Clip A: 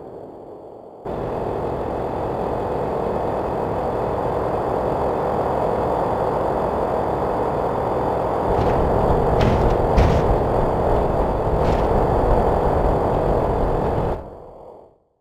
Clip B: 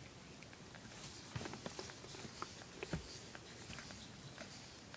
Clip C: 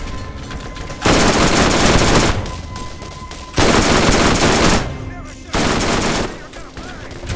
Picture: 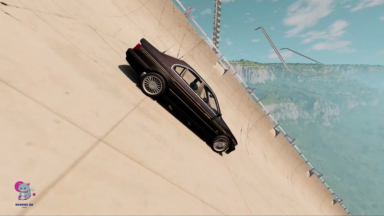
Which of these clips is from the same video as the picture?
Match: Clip A